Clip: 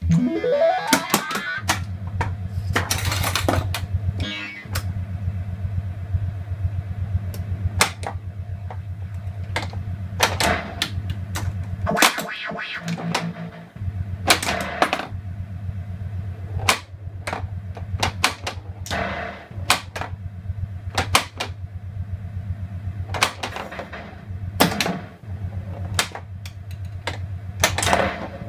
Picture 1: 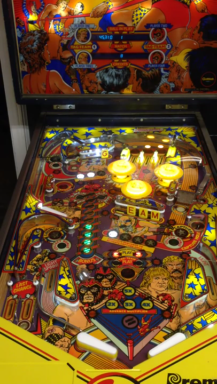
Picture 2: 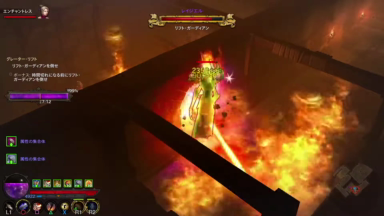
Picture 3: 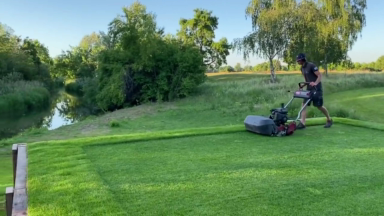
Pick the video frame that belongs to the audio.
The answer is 1